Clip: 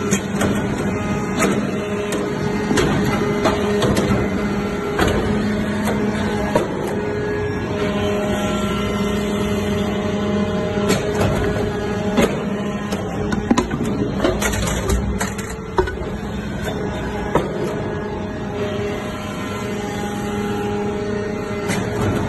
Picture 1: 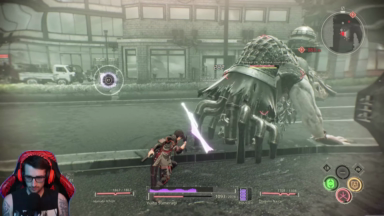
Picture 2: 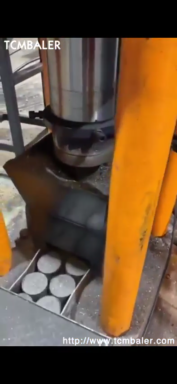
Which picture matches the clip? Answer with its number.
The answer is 2